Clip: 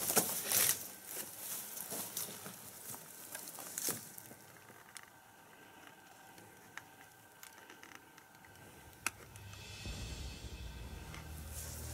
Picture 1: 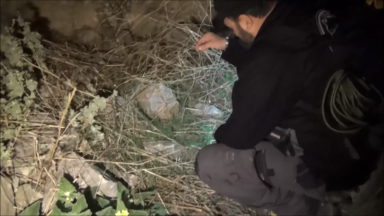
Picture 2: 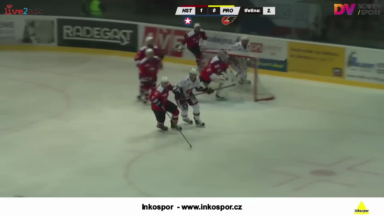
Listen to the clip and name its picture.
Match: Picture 1